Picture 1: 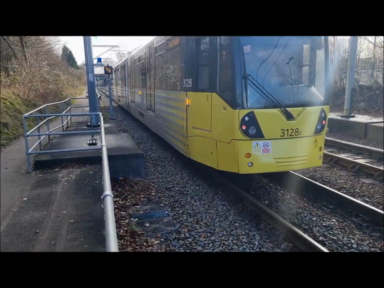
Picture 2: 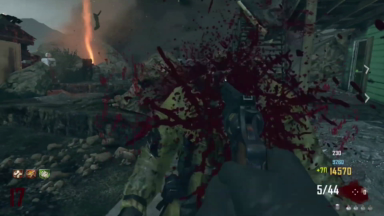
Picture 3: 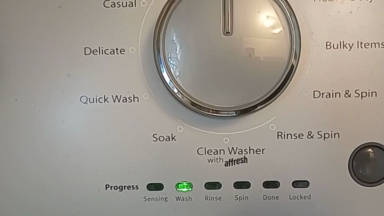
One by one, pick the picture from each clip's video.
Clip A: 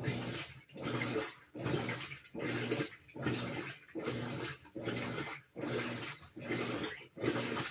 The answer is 3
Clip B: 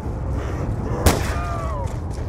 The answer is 2